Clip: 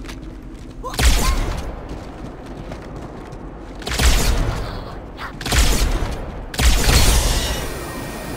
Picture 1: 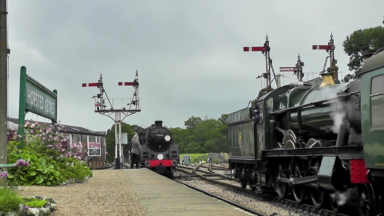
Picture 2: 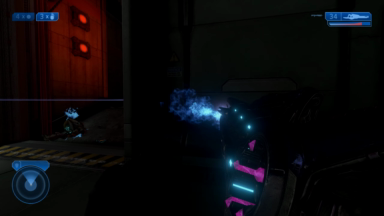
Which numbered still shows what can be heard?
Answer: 2